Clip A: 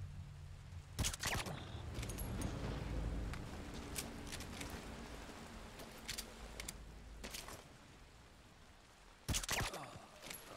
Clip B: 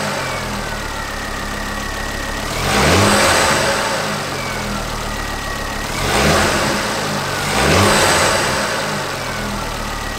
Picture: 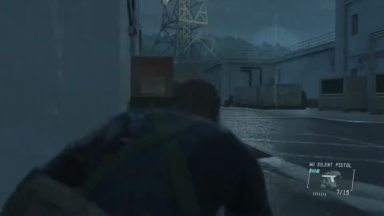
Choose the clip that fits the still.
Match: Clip A